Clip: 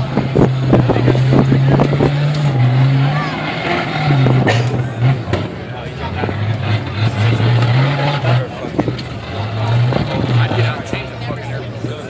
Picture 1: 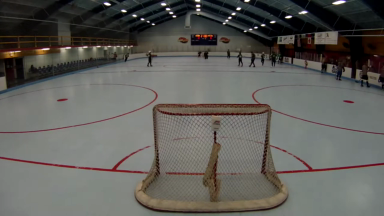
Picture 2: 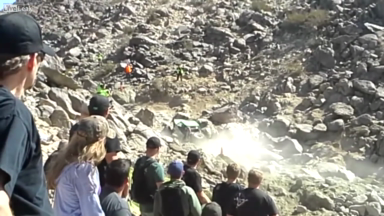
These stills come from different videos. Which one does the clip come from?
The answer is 2